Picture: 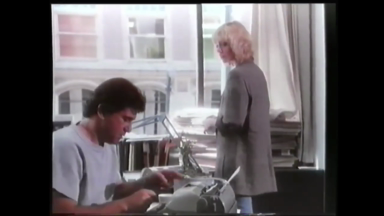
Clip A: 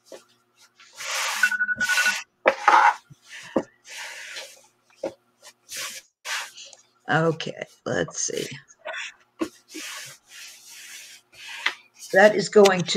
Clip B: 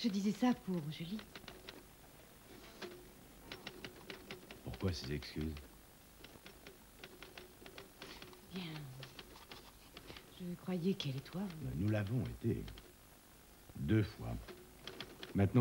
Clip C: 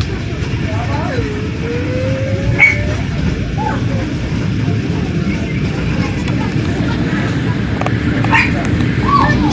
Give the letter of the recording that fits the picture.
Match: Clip B